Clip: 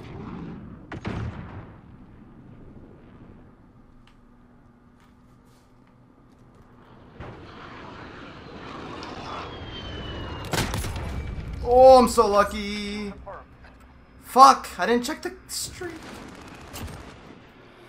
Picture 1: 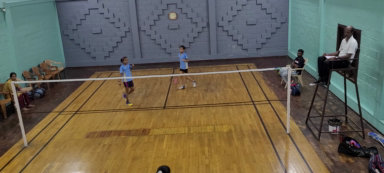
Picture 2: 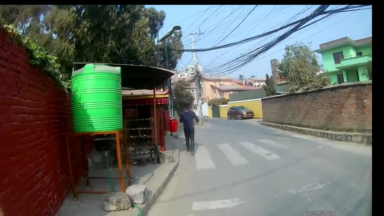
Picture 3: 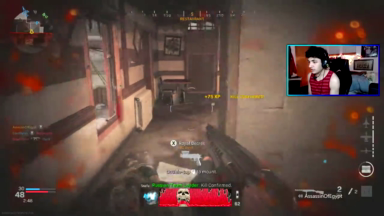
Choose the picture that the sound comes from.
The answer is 3